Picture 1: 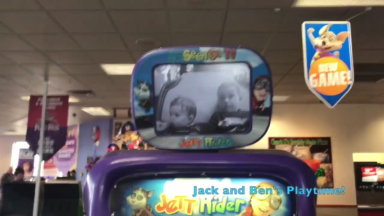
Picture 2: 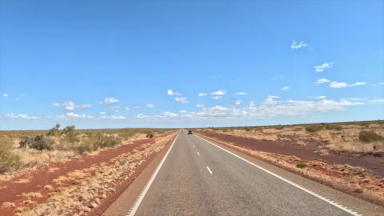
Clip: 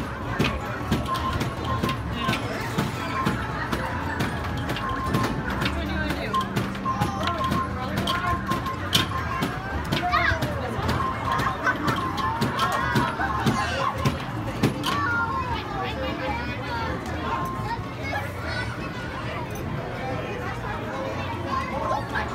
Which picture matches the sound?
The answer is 1